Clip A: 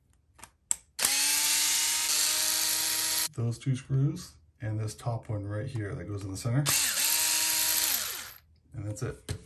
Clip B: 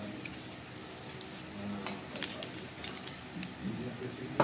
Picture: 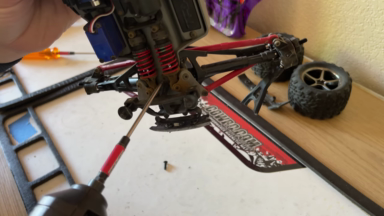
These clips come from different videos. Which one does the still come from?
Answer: A